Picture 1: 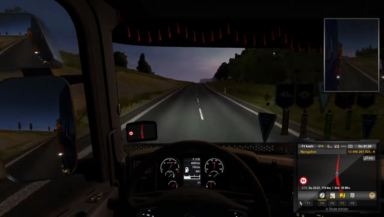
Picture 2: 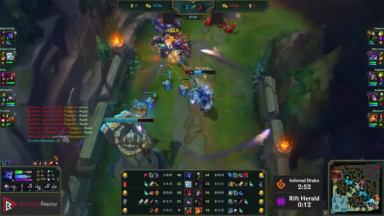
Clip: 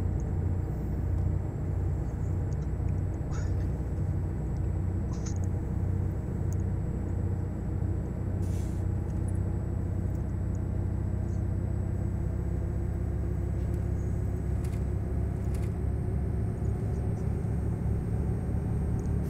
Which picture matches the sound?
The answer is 1